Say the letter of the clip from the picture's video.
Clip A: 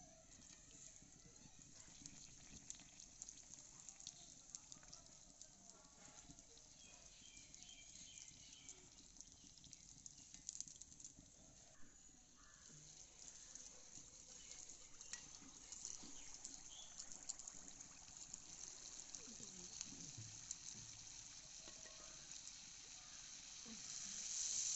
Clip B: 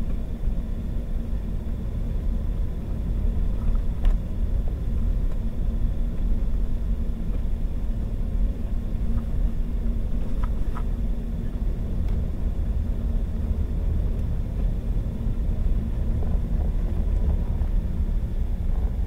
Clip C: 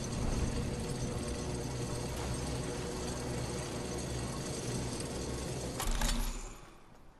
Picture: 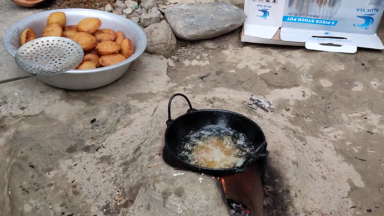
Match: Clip A